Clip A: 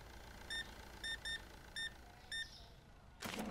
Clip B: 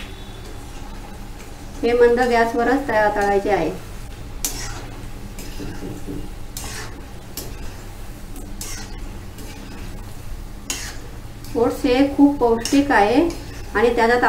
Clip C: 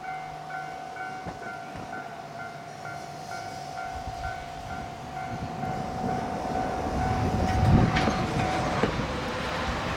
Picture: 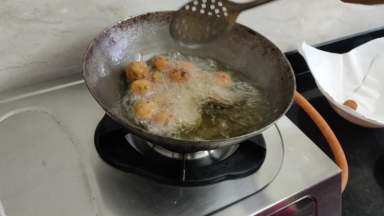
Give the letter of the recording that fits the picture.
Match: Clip B